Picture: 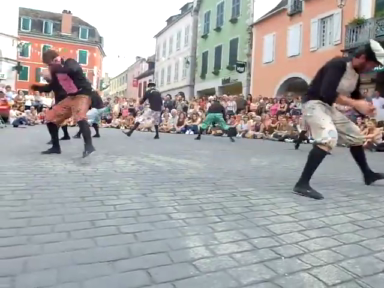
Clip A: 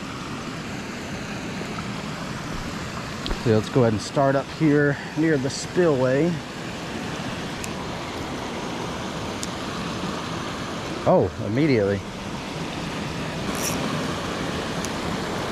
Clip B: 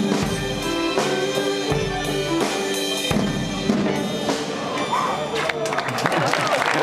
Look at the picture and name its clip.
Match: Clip B